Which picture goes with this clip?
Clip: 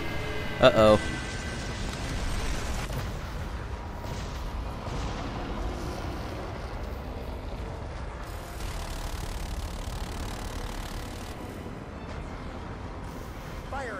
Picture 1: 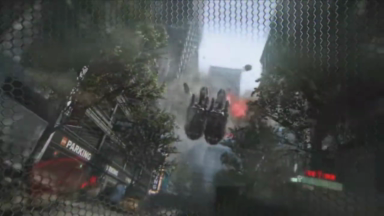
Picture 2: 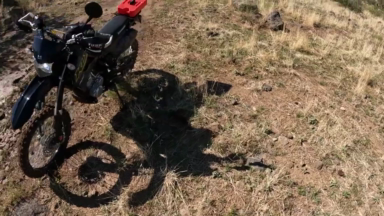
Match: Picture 1